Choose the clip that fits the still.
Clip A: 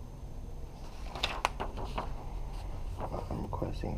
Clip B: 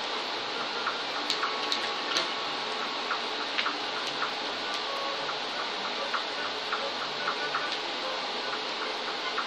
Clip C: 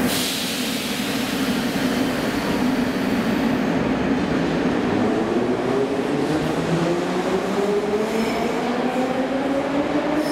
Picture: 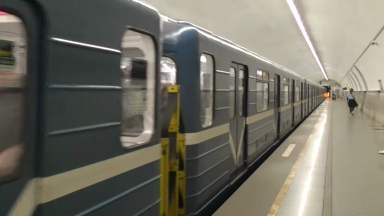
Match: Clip C